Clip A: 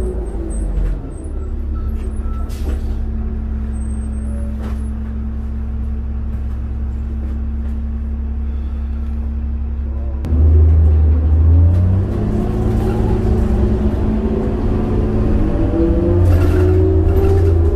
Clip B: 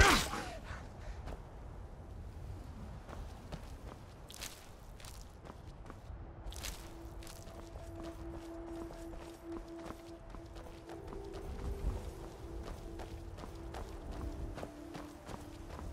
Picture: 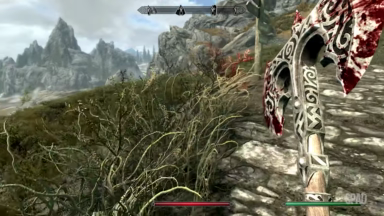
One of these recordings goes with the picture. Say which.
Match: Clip B